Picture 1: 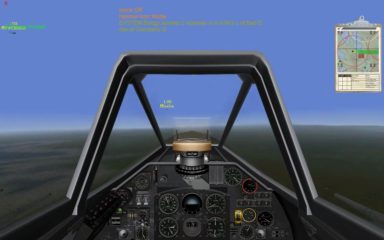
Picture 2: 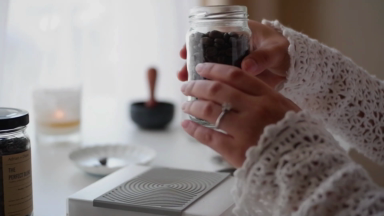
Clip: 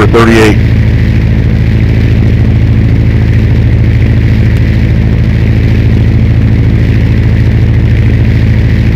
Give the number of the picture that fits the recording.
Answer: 1